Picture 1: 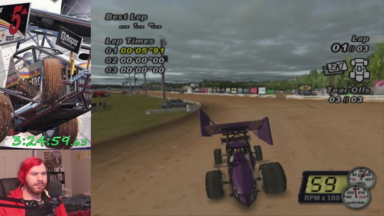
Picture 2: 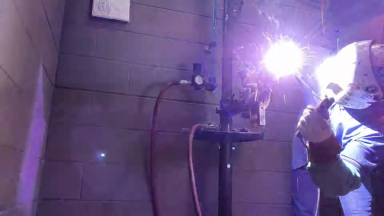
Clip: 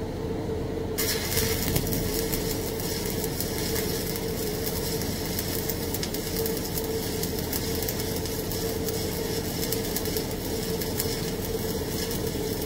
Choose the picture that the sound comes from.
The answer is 2